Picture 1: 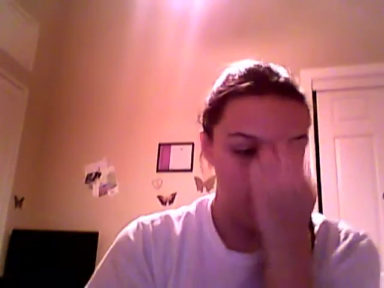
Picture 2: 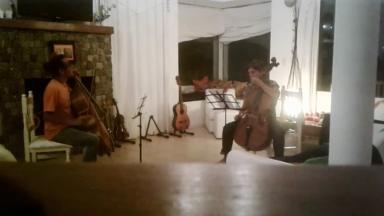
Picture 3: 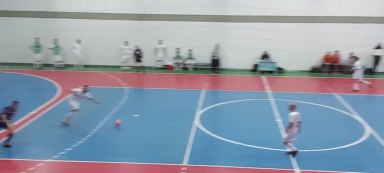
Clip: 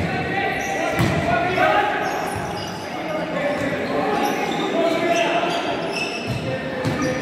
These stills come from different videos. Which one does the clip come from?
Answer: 3